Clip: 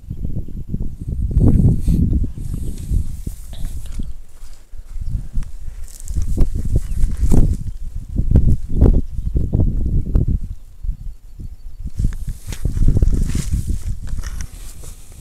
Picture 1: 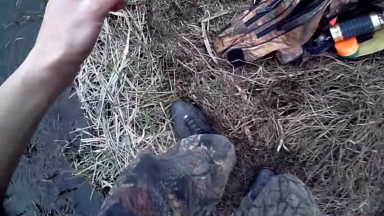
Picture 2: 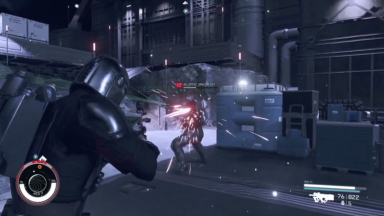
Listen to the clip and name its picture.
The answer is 1